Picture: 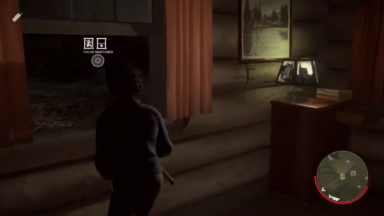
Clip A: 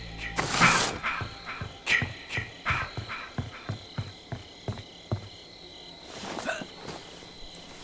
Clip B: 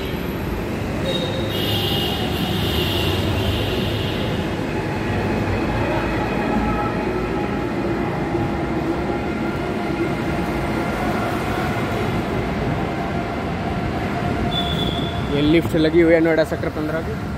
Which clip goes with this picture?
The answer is A